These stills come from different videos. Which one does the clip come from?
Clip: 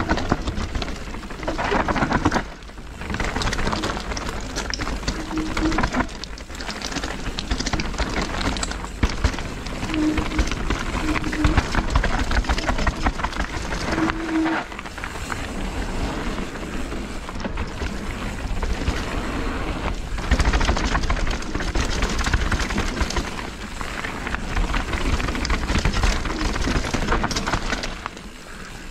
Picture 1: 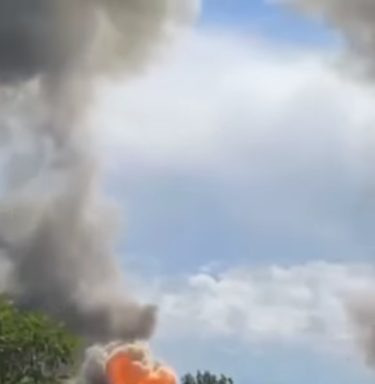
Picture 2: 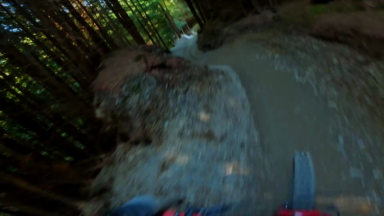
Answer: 2